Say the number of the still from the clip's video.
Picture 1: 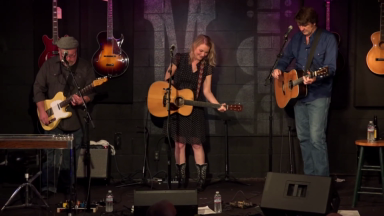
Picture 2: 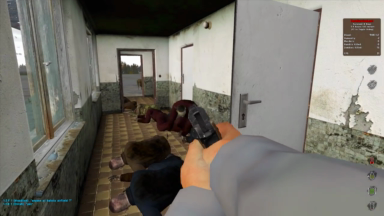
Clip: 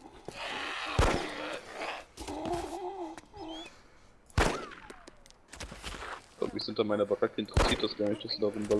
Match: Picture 2